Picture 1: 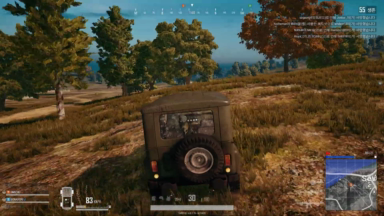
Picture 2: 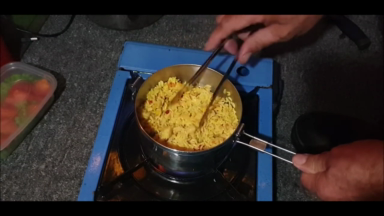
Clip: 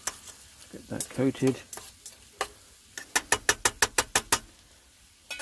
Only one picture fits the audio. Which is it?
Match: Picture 2